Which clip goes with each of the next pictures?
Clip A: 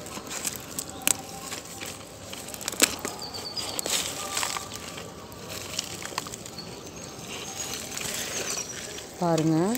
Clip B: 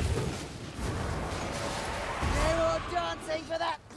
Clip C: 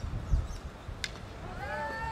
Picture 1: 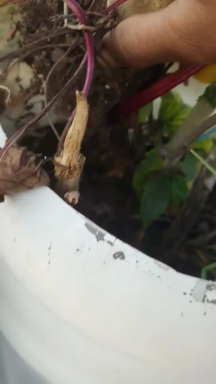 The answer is A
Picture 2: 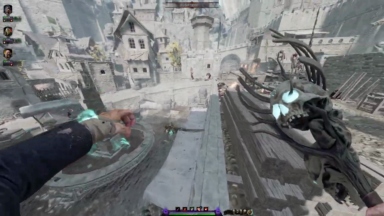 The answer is B